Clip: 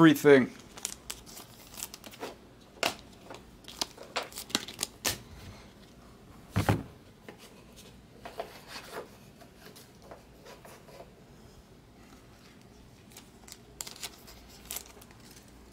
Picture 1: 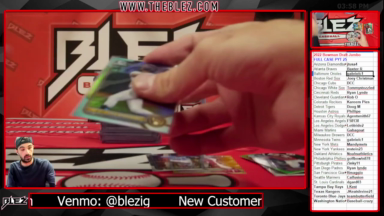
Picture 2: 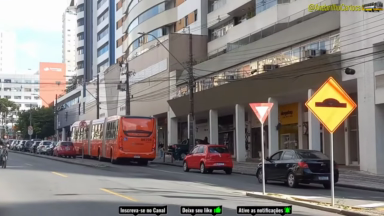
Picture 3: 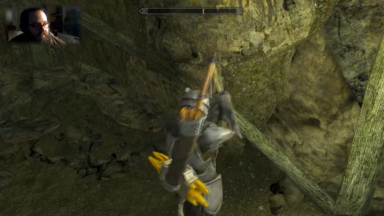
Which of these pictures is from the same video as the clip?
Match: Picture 1